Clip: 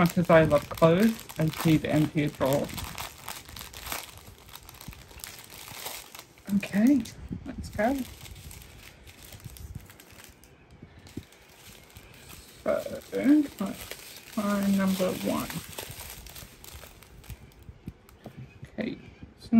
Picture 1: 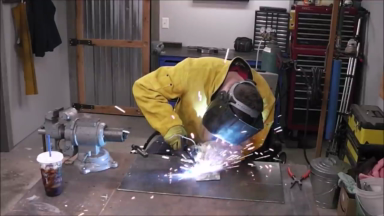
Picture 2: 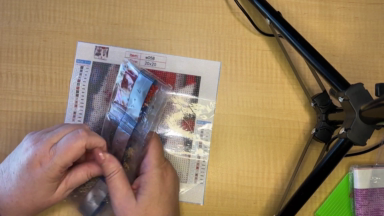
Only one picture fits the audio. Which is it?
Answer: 2